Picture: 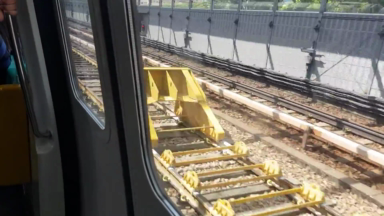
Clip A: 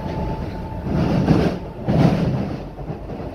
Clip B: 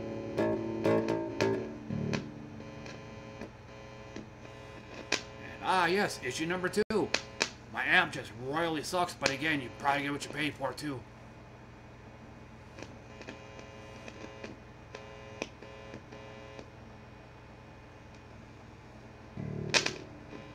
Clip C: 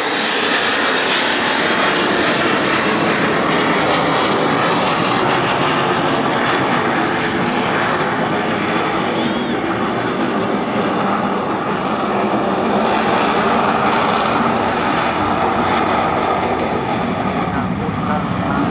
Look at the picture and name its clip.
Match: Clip A